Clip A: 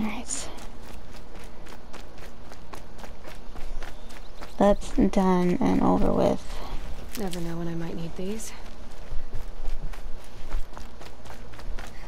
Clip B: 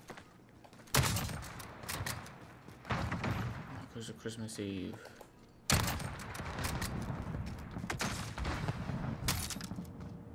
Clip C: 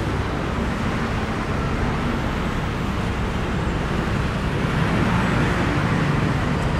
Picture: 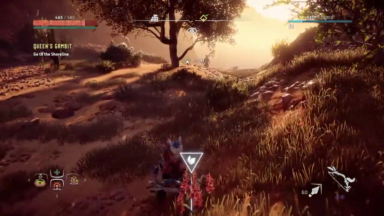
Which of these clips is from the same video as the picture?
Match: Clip A